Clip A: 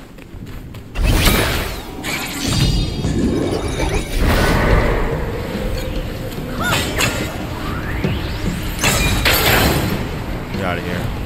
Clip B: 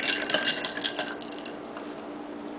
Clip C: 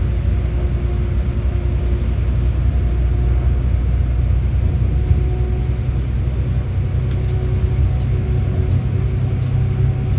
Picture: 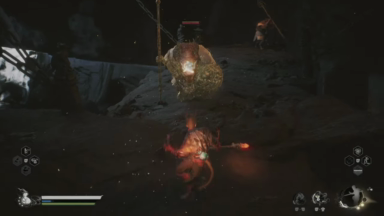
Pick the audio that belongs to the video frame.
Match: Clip A